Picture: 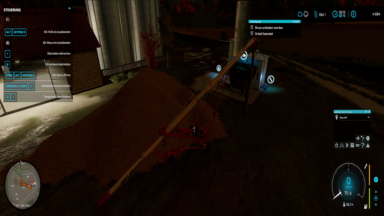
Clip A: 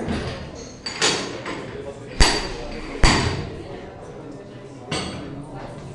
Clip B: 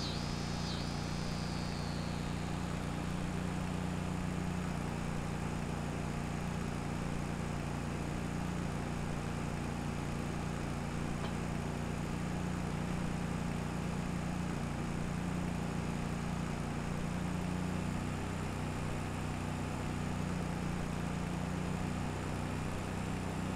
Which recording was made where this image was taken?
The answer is B